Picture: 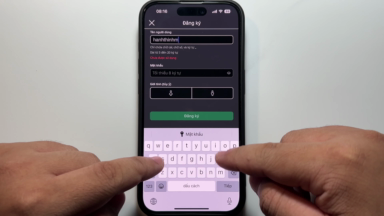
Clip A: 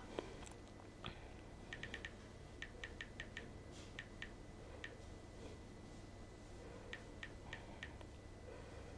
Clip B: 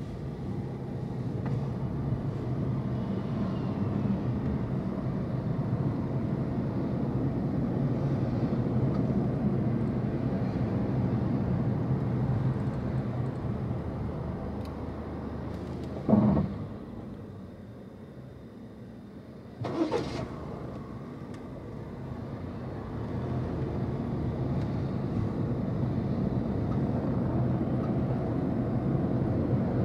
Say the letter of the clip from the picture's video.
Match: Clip A